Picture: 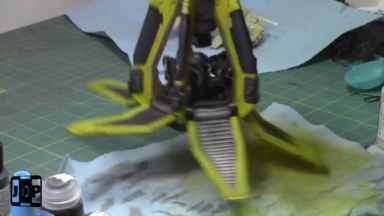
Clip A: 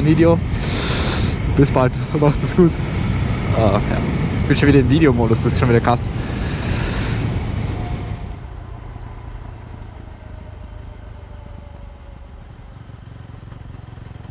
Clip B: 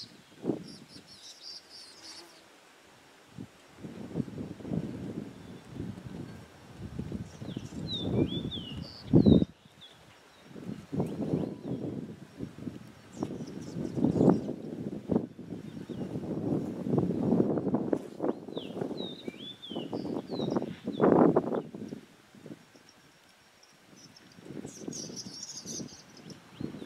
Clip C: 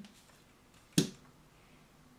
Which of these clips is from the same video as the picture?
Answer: C